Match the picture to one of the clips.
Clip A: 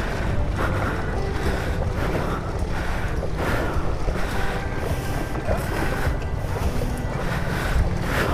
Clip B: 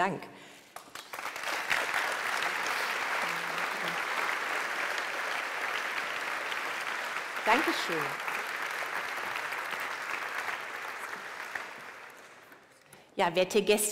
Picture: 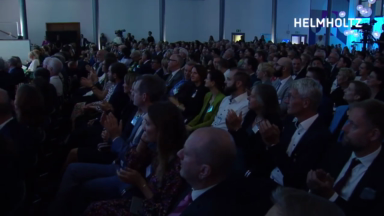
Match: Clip B